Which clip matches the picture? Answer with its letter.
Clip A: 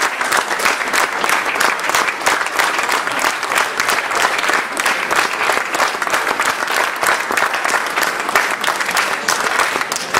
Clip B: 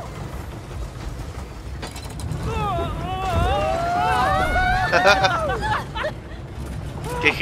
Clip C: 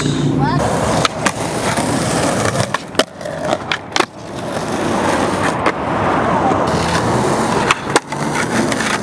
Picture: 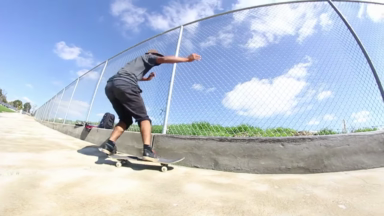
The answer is C